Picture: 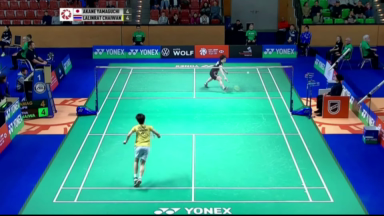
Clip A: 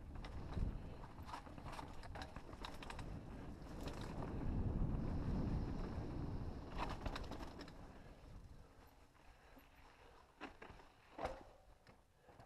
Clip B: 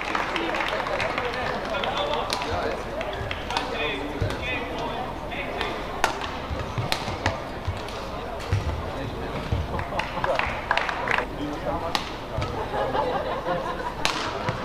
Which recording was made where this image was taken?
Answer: B